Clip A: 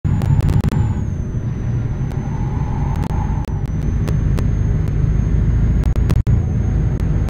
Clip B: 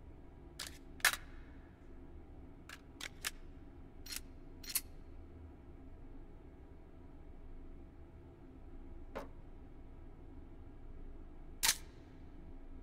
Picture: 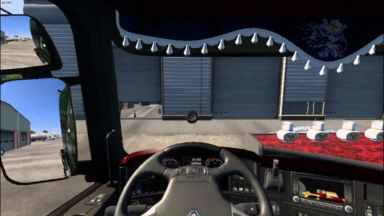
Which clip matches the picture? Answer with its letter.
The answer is A